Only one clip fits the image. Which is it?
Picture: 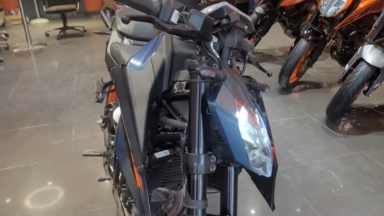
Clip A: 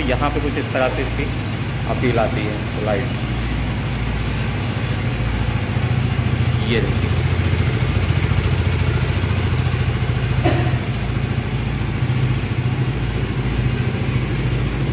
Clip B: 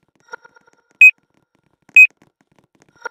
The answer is A